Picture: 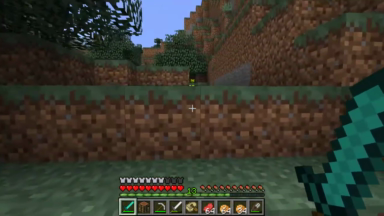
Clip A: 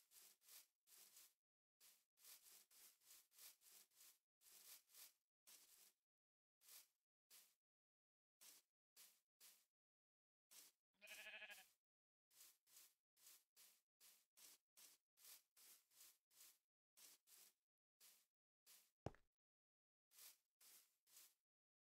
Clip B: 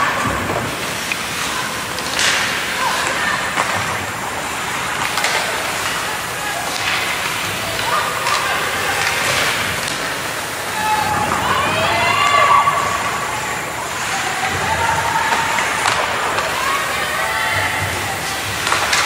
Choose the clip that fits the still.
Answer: A